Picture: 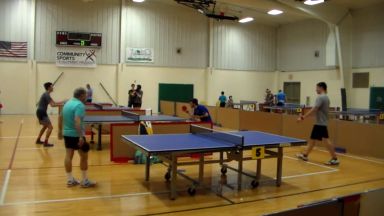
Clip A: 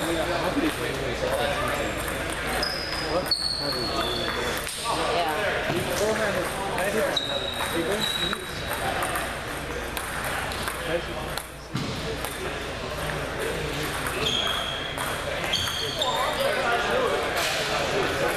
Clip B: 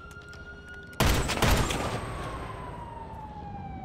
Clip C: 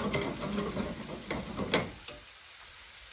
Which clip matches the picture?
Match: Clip A